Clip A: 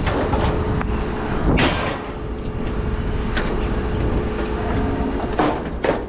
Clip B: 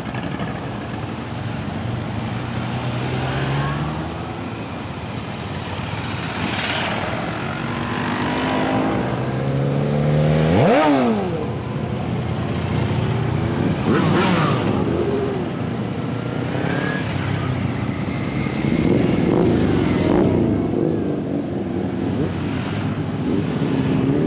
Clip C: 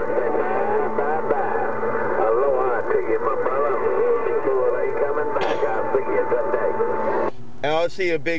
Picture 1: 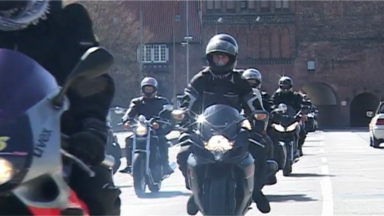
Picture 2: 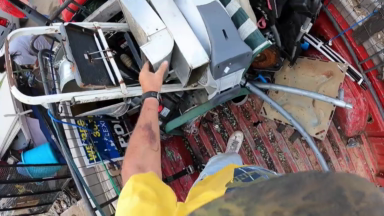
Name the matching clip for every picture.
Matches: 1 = B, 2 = A